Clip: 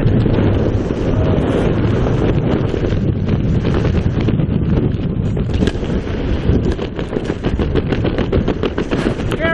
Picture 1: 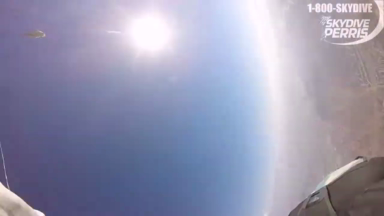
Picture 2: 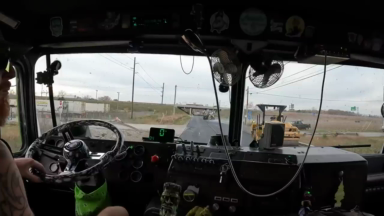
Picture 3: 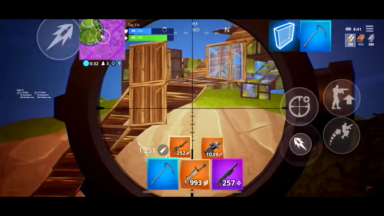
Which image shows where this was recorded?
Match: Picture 1